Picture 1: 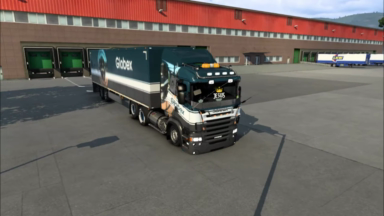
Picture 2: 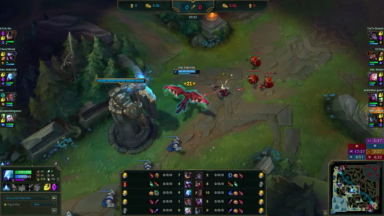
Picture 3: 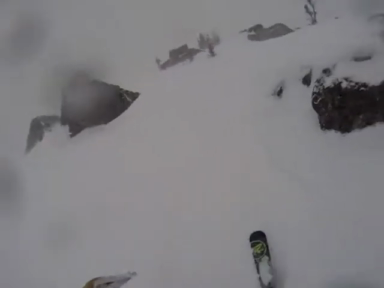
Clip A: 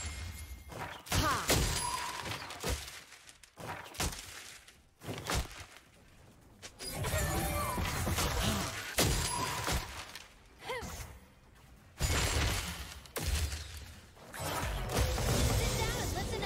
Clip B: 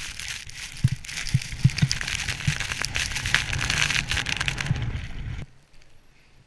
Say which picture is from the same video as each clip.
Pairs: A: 2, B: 3